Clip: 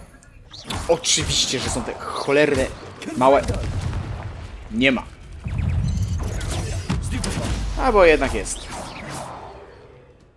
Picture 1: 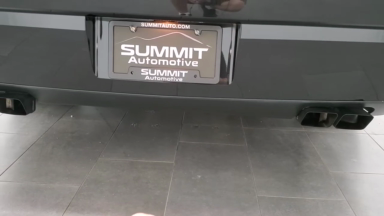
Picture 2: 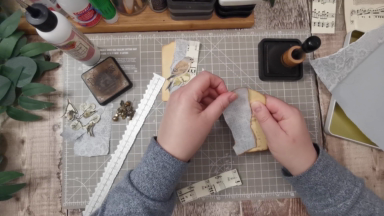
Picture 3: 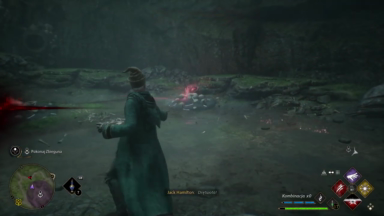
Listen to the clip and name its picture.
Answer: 3